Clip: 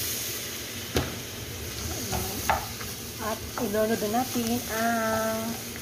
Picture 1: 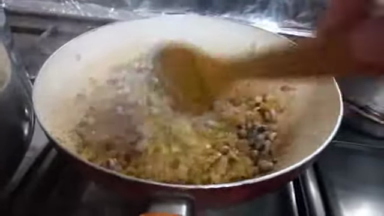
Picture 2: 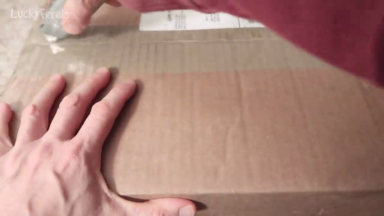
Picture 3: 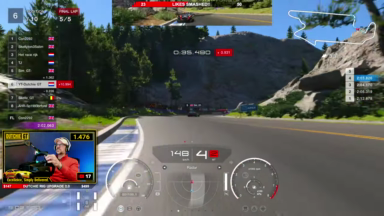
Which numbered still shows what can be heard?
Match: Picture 1